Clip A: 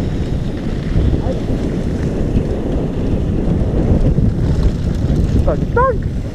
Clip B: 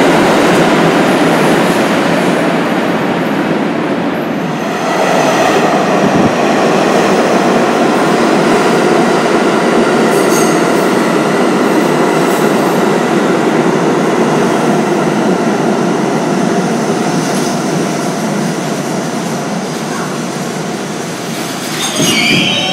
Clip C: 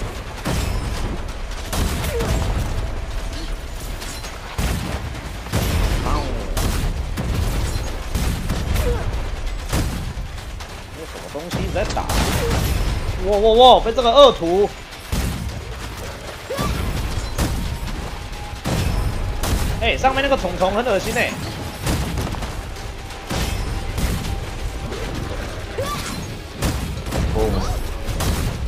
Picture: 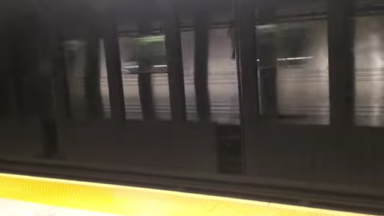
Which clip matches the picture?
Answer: B